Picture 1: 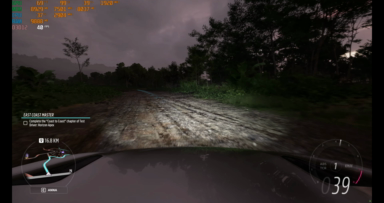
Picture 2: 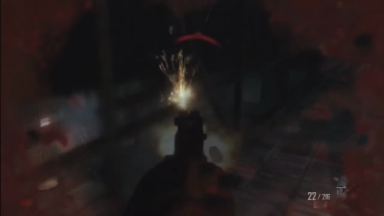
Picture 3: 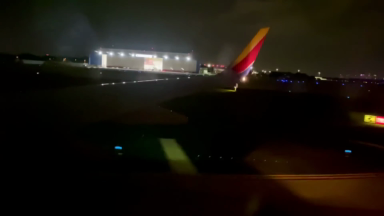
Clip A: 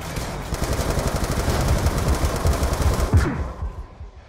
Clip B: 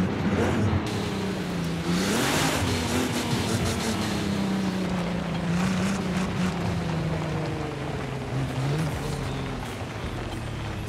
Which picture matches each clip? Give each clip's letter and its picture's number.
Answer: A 2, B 1